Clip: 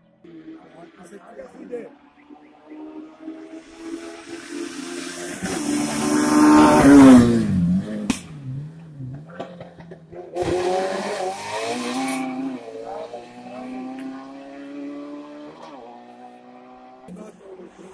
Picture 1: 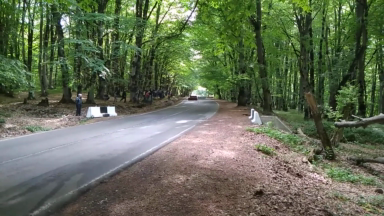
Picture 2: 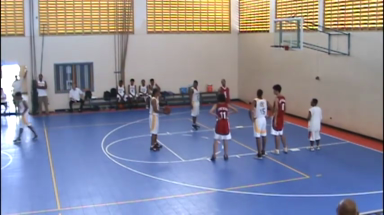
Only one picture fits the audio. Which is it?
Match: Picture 1